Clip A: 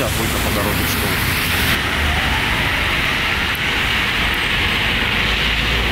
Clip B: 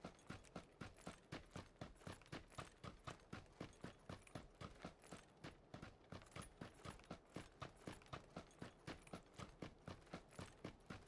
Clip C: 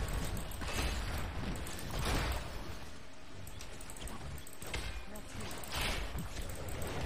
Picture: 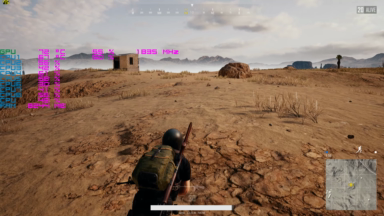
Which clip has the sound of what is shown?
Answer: B